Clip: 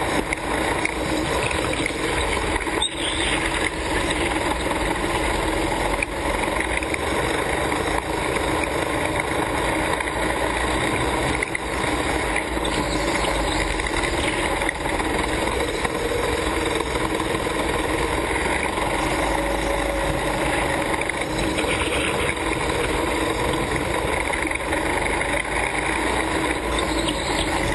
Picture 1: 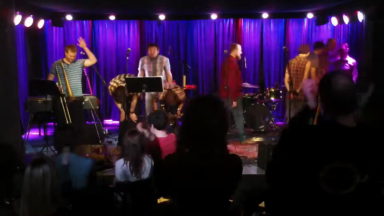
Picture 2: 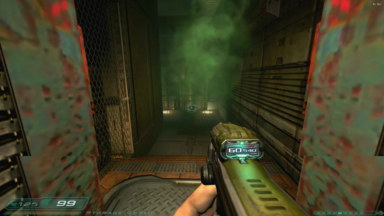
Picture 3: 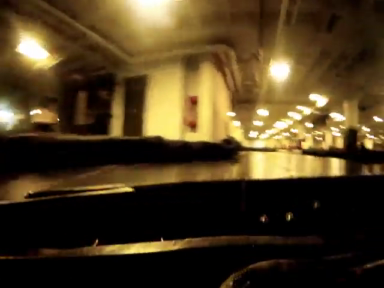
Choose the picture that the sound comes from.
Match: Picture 3